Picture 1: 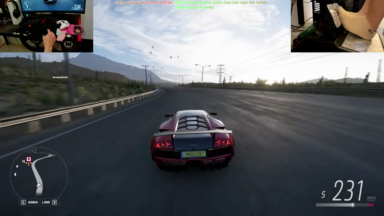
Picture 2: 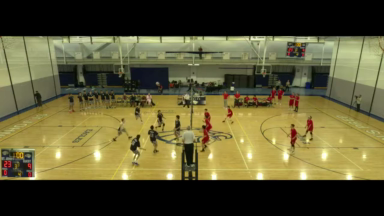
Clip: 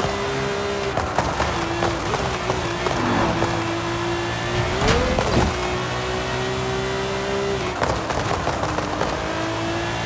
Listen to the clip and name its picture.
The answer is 1